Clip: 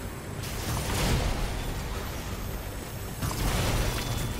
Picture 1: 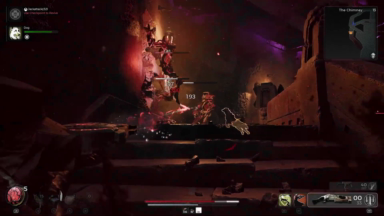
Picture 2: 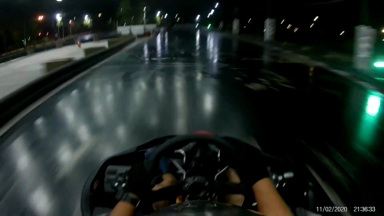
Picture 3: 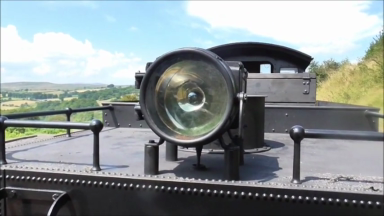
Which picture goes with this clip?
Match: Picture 1